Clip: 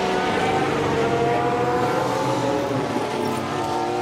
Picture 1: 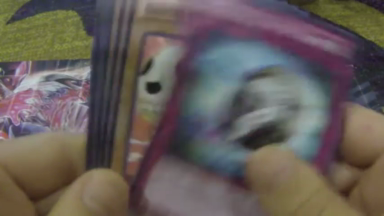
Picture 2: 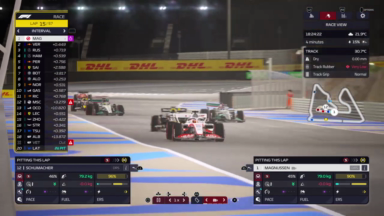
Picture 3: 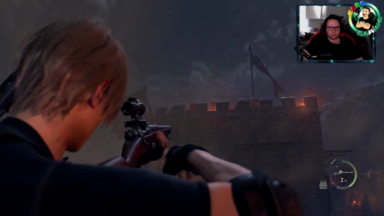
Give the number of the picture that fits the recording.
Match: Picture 2